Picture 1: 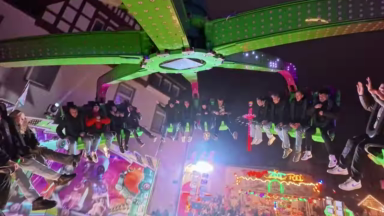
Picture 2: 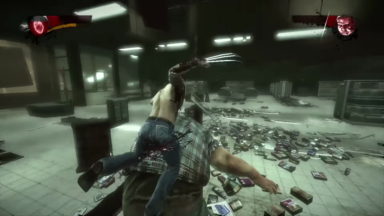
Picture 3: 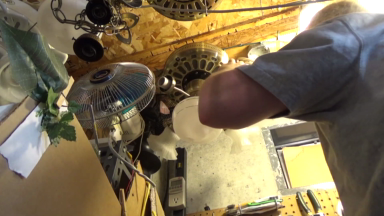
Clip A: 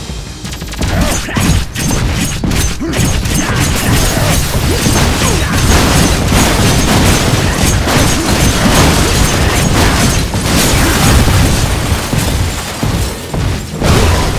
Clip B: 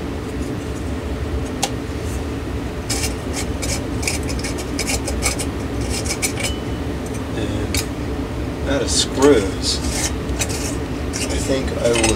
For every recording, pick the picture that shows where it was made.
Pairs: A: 2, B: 3